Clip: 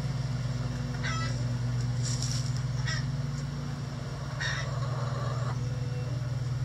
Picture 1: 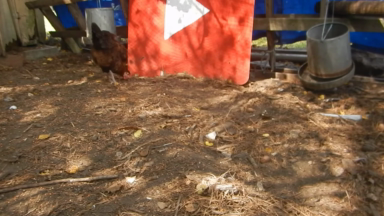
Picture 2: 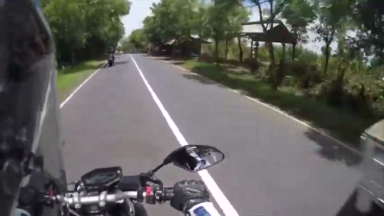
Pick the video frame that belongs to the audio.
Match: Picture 1